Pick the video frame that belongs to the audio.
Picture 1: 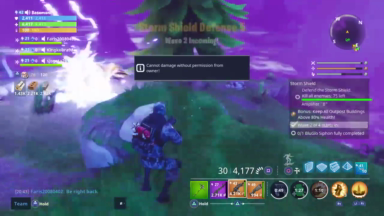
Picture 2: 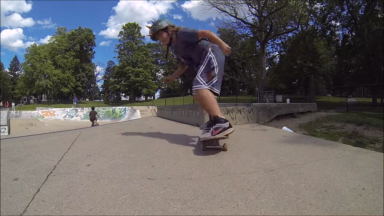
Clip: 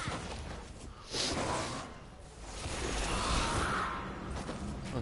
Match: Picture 1